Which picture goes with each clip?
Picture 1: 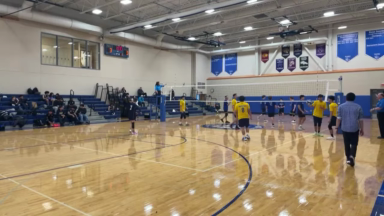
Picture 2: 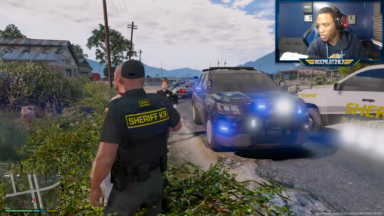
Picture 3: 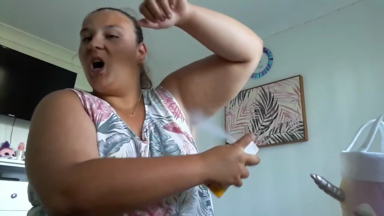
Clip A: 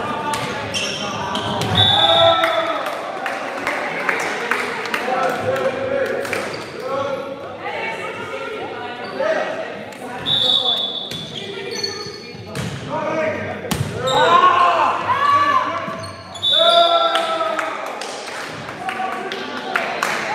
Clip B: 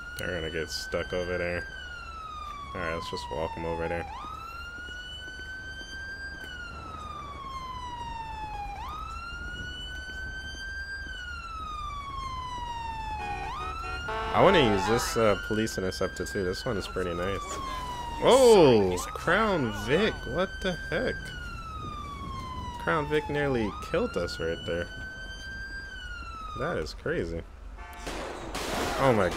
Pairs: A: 1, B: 2